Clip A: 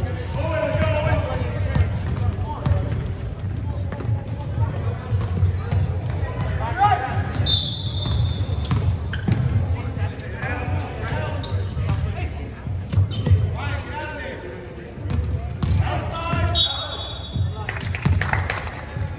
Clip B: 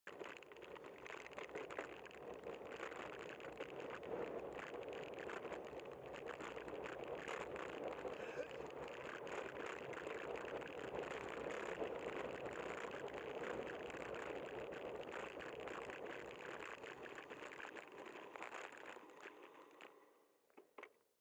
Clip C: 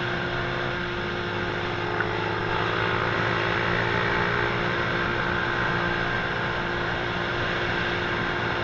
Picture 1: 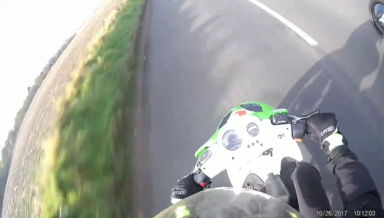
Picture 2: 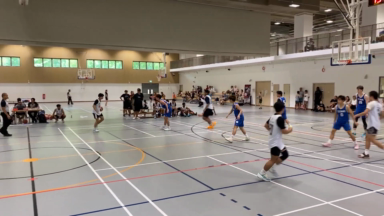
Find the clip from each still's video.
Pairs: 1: C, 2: A